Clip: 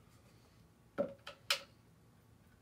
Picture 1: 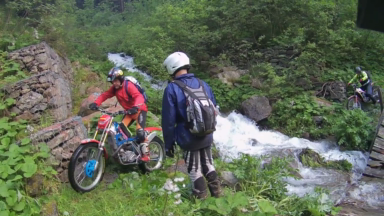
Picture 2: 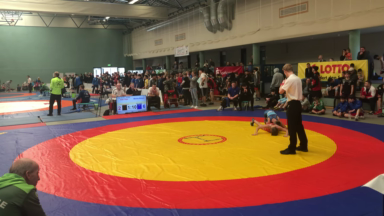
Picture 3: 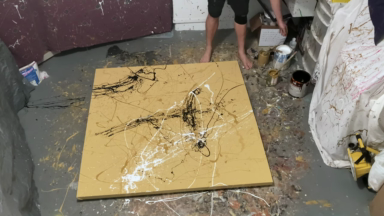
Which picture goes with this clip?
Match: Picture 3